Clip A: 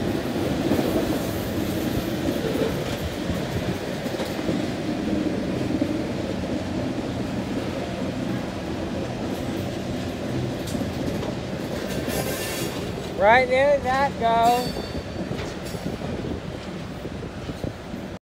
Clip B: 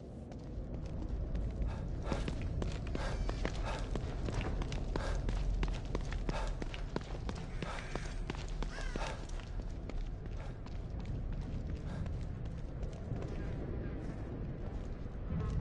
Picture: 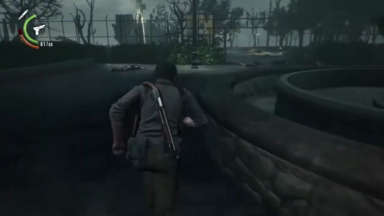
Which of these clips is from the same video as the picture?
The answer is B